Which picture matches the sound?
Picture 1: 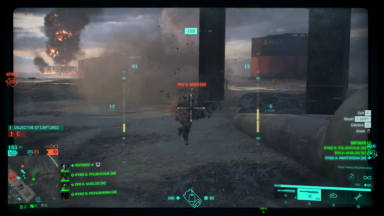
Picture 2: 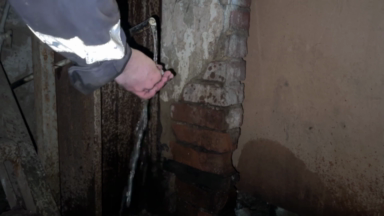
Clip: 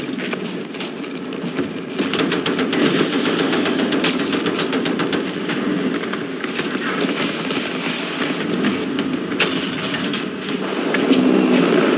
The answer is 1